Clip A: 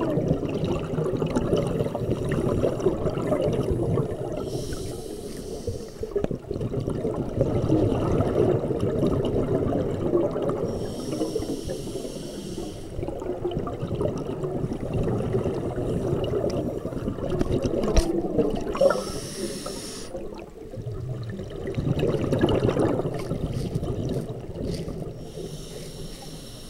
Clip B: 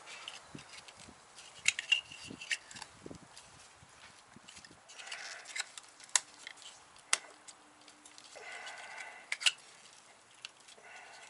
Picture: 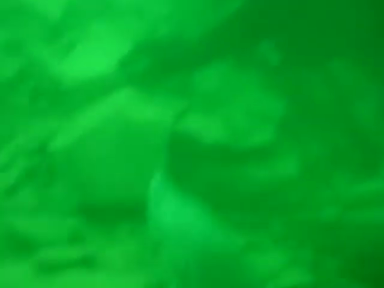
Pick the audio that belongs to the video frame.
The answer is A